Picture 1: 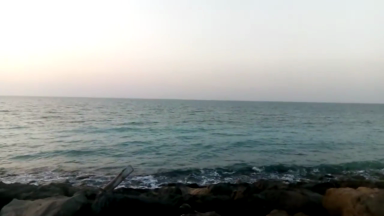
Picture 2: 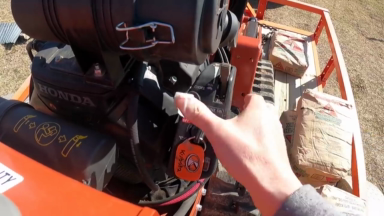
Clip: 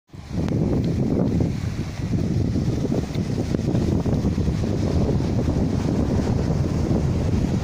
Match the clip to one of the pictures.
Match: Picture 1